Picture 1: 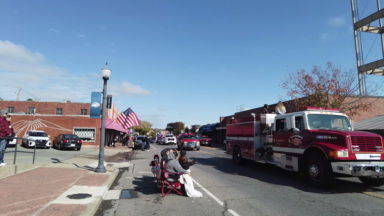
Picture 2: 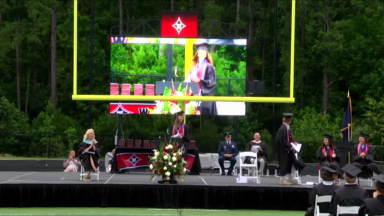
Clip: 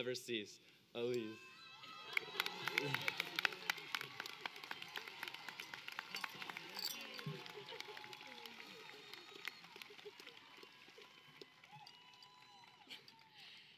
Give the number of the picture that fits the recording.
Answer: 2